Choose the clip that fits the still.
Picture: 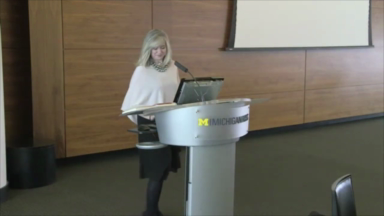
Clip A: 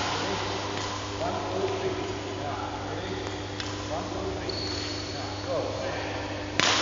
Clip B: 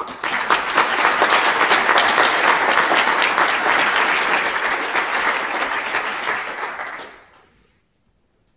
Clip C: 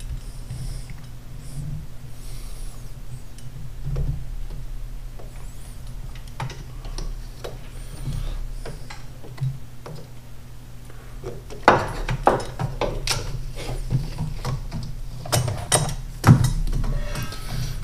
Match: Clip B